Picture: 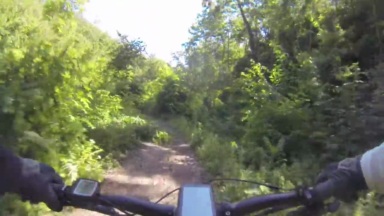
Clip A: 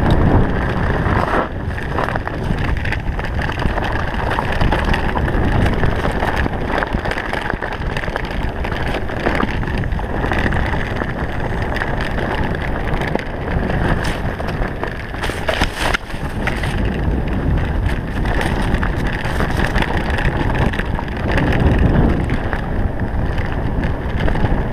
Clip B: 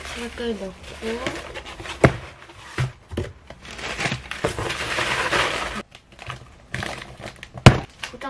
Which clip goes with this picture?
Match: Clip A